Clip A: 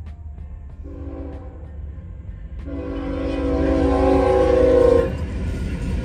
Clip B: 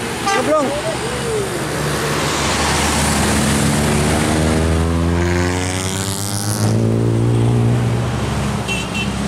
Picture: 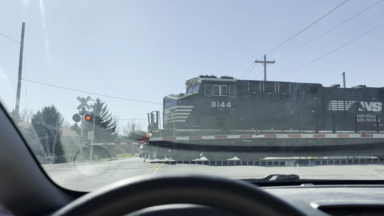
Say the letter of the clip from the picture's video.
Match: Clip A